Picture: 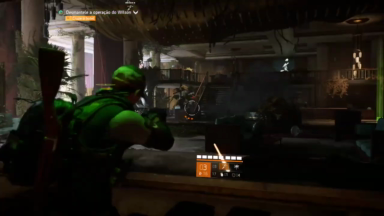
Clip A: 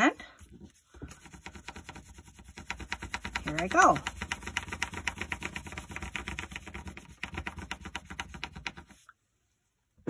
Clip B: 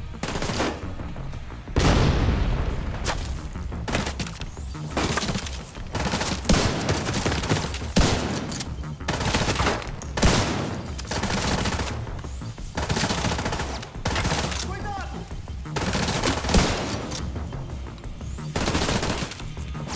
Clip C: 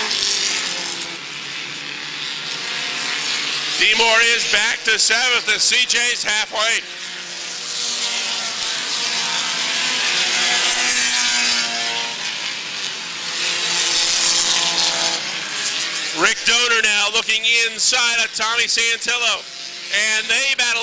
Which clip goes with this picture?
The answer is B